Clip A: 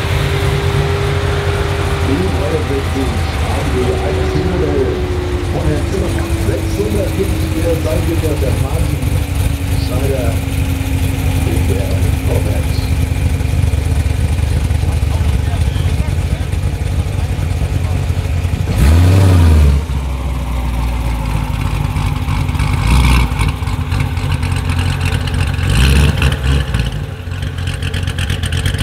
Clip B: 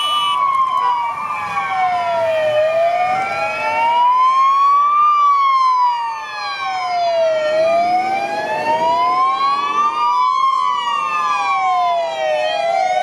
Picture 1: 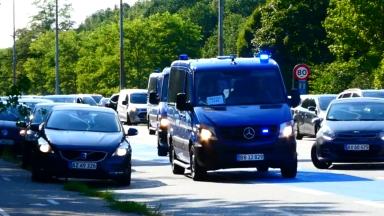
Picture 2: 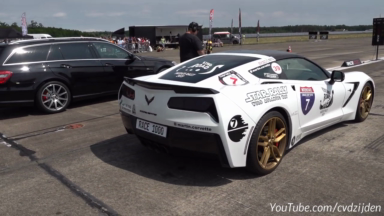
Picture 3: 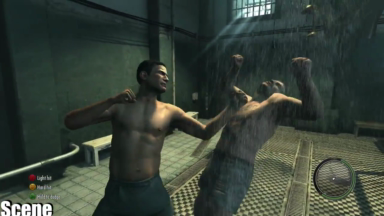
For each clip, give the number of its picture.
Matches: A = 2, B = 1